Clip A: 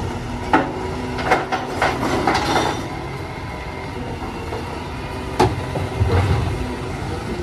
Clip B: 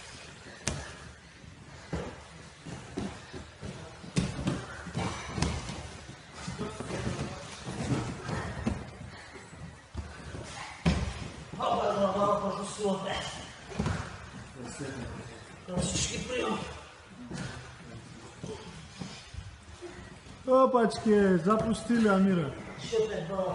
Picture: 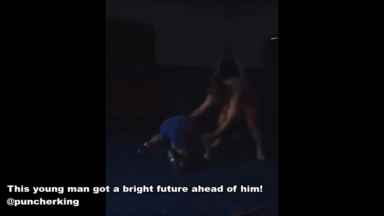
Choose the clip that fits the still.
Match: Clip B